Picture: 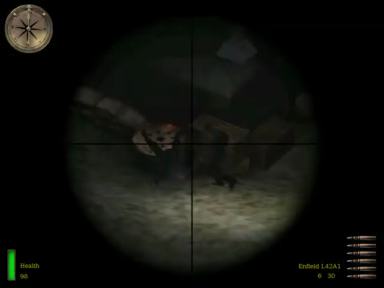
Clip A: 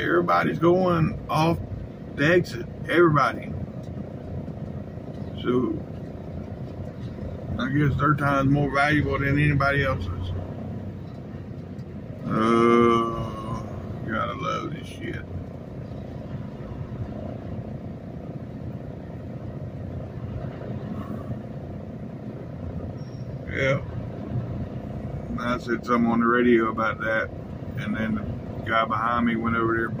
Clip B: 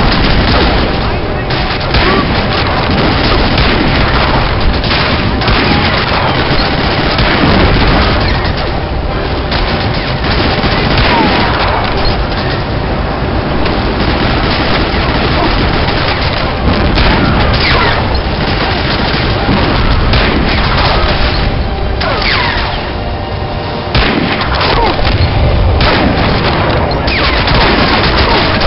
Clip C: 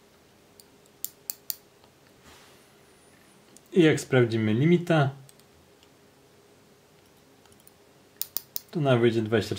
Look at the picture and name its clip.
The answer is B